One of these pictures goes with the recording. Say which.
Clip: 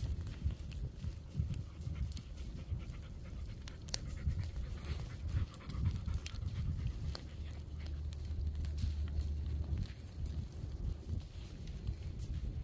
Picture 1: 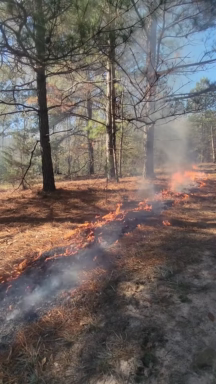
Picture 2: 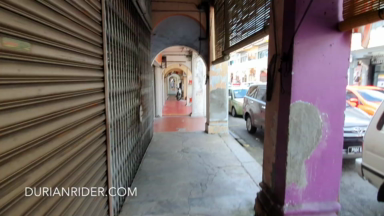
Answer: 1